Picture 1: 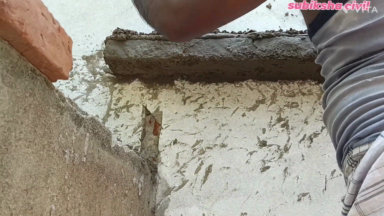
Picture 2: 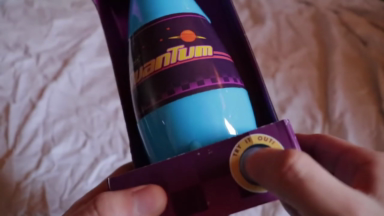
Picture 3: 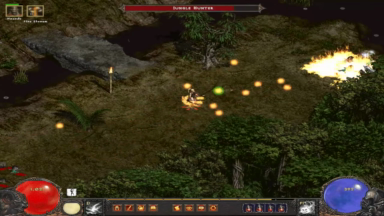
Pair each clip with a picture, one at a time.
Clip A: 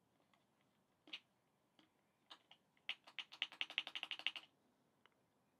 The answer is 2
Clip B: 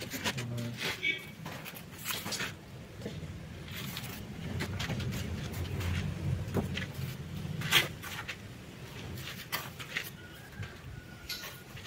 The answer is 1